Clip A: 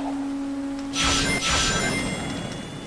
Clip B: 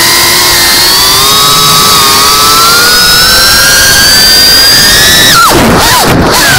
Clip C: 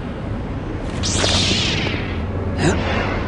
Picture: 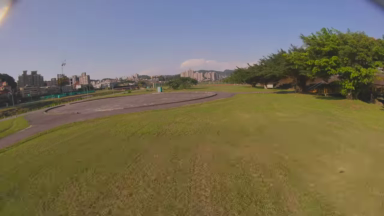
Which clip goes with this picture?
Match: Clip B